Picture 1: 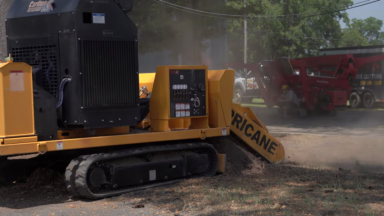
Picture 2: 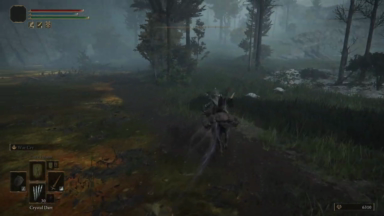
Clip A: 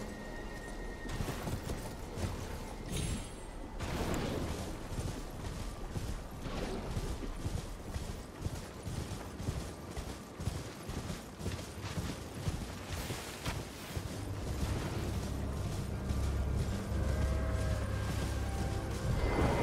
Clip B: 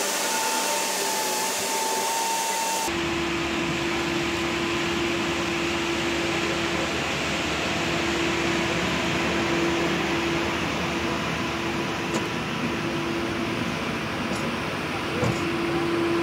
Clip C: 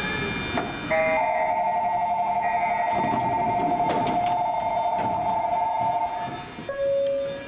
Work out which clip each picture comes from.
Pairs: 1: B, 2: A